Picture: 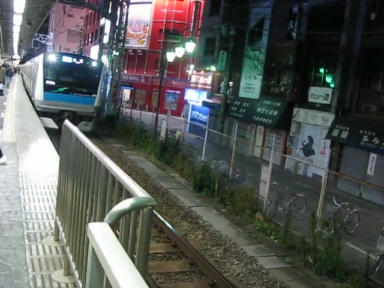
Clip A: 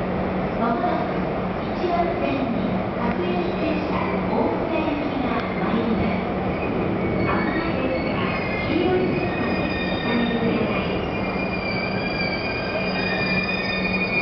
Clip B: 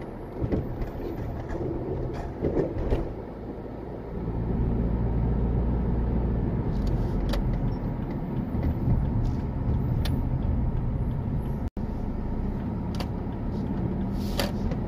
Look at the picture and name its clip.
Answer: A